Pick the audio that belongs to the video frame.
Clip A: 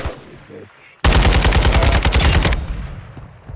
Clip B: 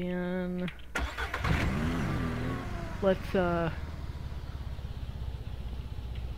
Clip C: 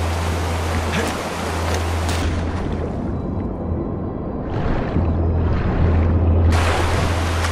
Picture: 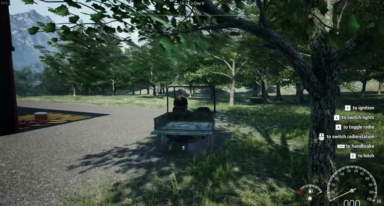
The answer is B